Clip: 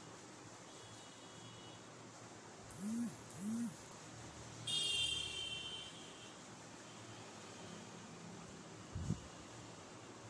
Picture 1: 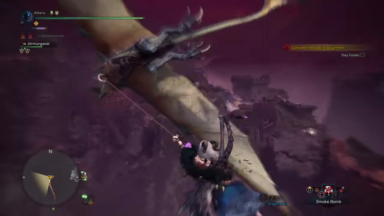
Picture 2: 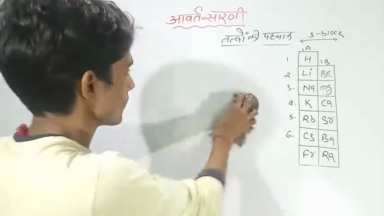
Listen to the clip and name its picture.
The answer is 2